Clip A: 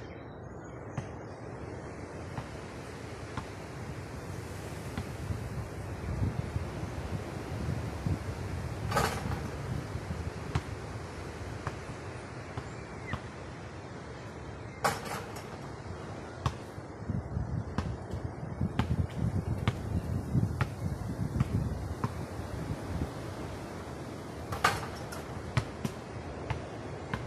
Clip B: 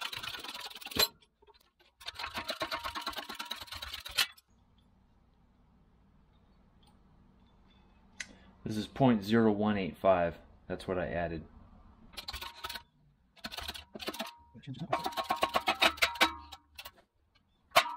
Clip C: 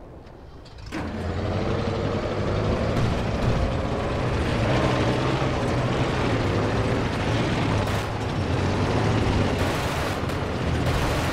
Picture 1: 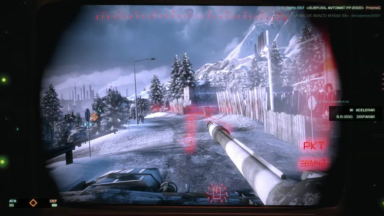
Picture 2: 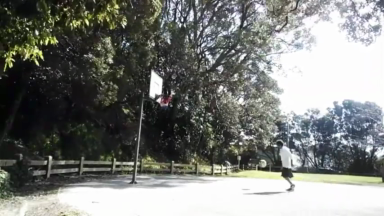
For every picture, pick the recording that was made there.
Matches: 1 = C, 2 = A